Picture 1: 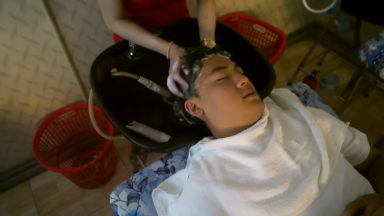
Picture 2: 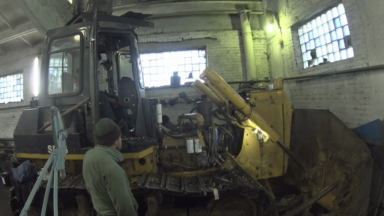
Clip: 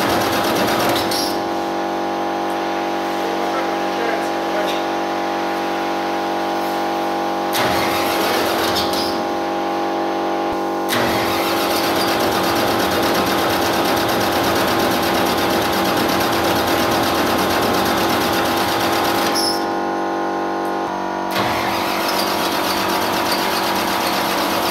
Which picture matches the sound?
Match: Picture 2